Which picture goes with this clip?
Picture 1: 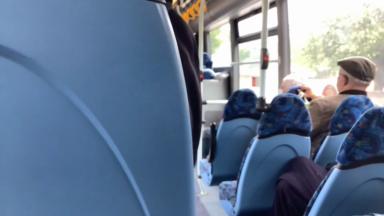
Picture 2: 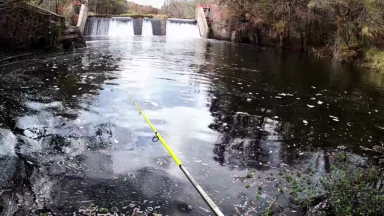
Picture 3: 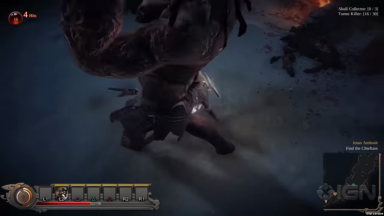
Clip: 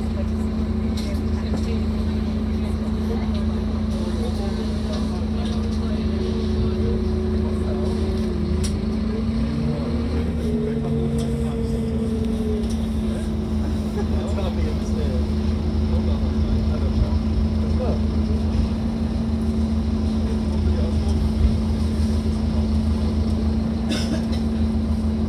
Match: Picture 1